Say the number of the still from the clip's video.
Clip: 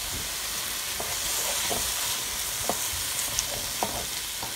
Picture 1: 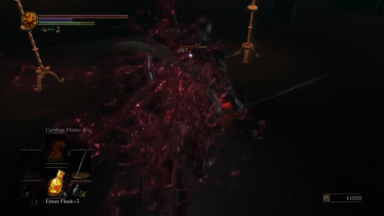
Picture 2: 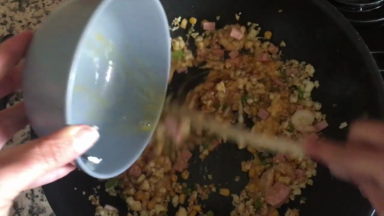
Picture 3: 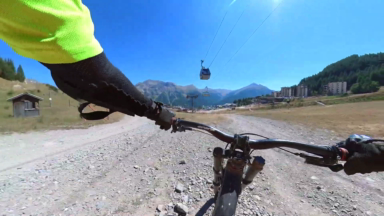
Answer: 2